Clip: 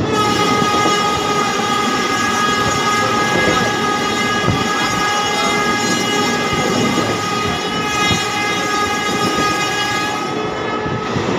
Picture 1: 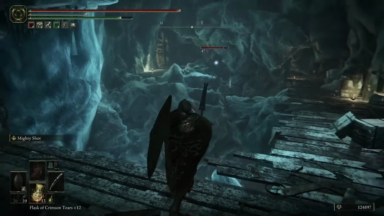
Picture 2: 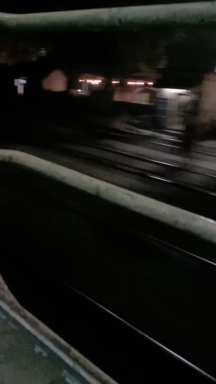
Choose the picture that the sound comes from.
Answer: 2